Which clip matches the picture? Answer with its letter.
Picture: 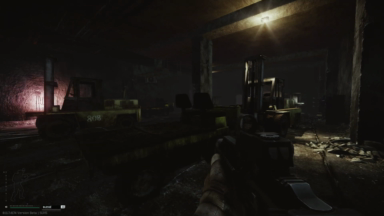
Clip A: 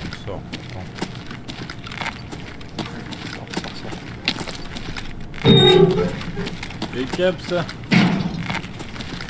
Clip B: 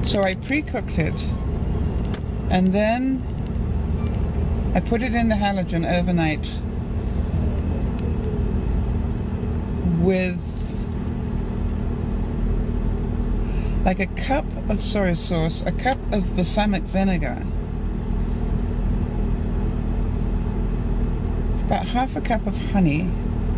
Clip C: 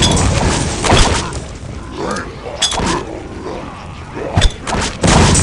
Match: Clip A